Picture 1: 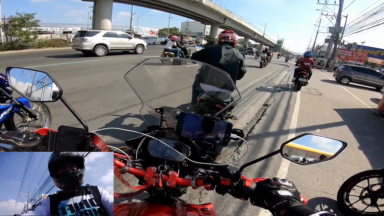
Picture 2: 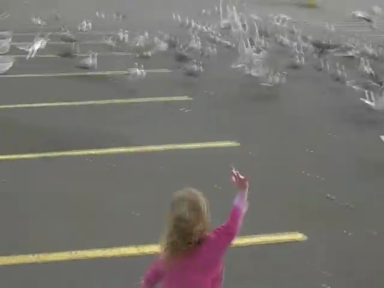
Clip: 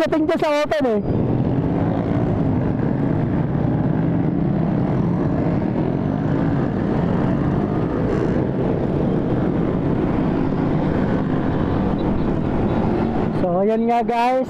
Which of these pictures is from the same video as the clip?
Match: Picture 1